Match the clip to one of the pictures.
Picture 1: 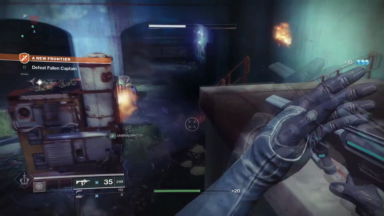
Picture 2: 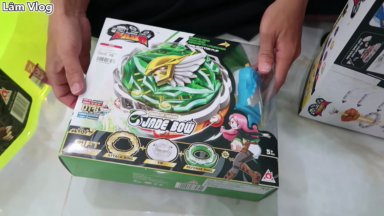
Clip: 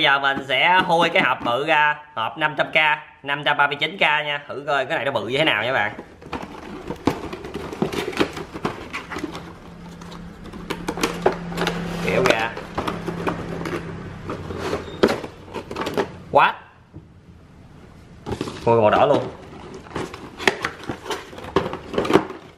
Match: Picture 2